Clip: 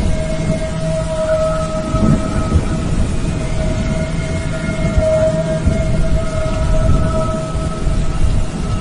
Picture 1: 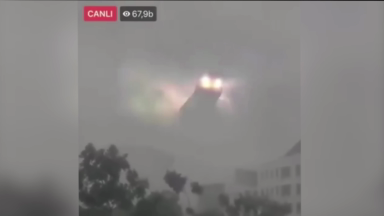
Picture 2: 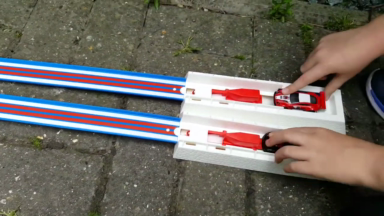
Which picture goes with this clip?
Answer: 1